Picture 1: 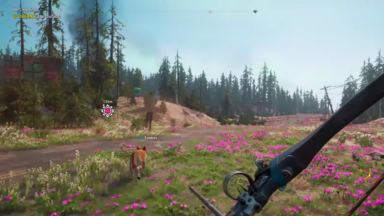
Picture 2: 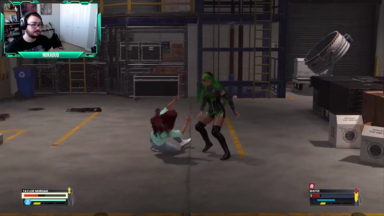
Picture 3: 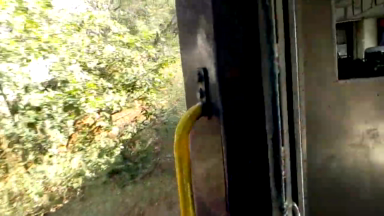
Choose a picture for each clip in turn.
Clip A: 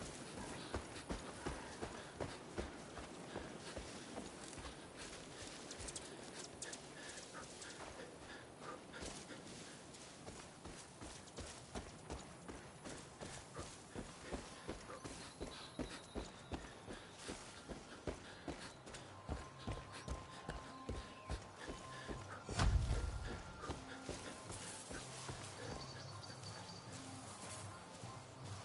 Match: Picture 1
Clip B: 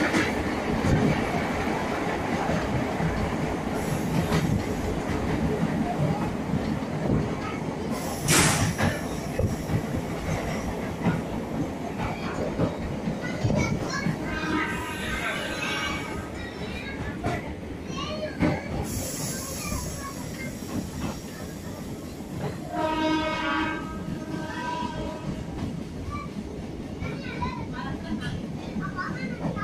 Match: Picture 3